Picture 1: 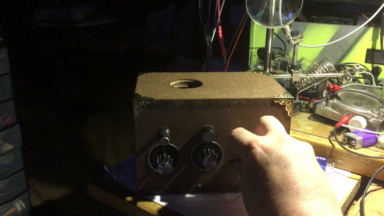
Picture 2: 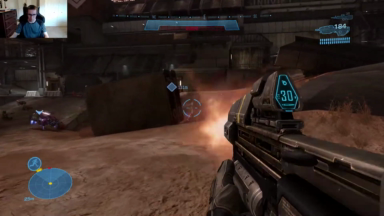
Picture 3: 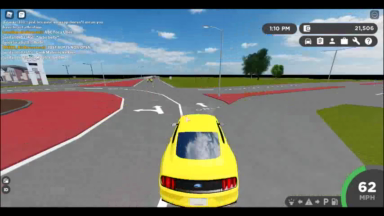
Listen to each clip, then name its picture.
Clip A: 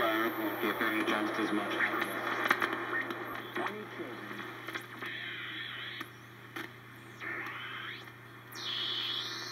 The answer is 1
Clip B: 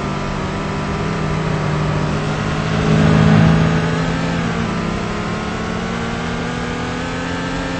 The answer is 3